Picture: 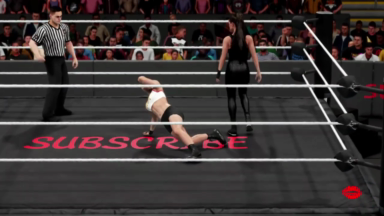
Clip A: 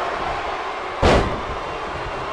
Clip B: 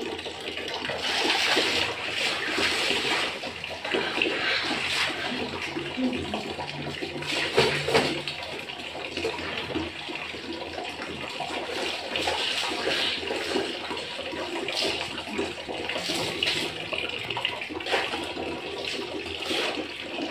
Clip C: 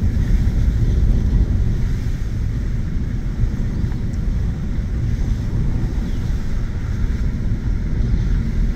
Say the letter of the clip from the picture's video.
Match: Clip A